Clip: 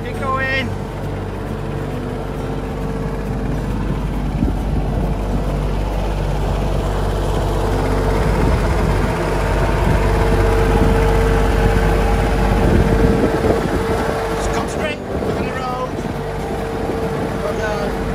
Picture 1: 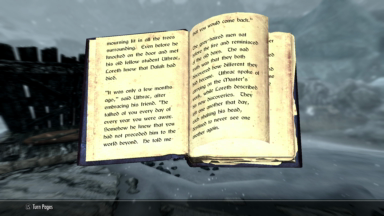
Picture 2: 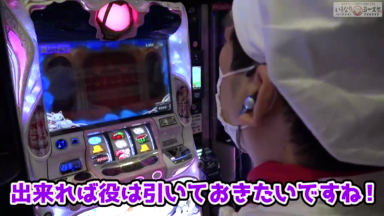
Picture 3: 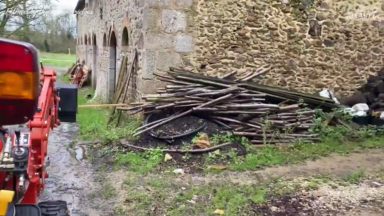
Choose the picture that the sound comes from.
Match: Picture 3